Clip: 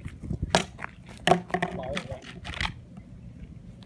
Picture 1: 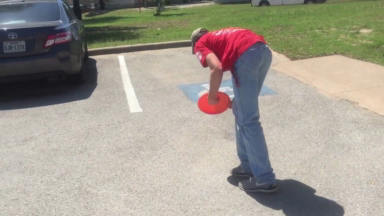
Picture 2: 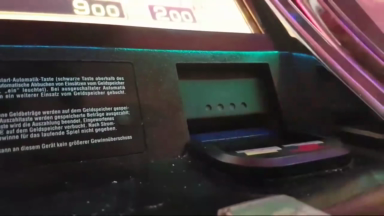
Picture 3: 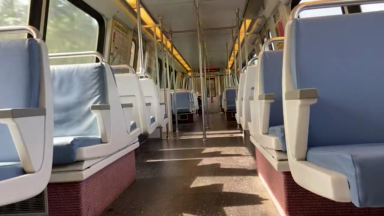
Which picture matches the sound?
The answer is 1